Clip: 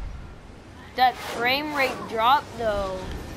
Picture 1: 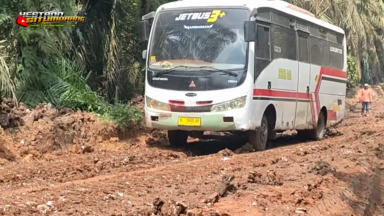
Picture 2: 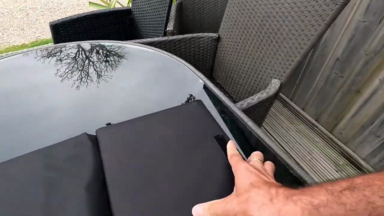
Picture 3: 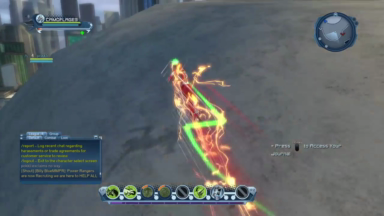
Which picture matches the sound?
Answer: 3